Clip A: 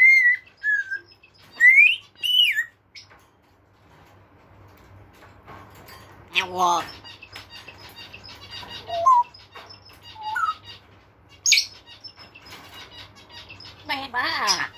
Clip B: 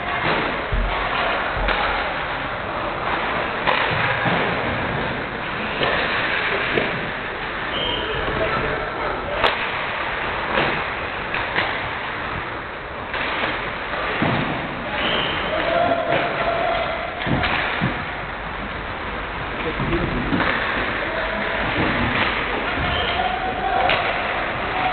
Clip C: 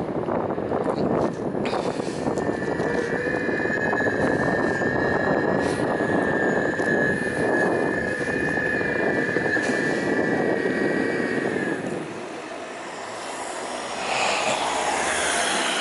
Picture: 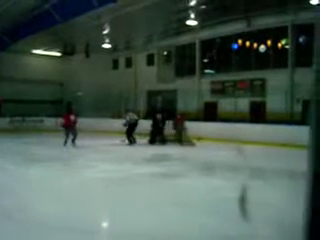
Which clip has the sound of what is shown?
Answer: B